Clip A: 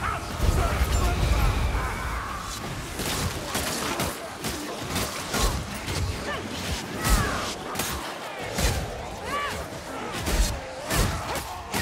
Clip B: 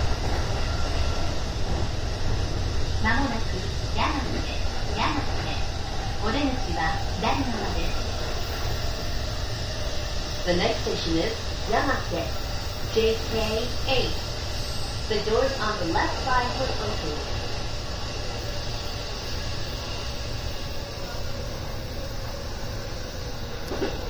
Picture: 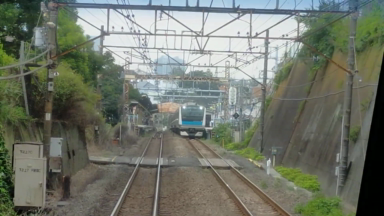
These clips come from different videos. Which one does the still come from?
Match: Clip B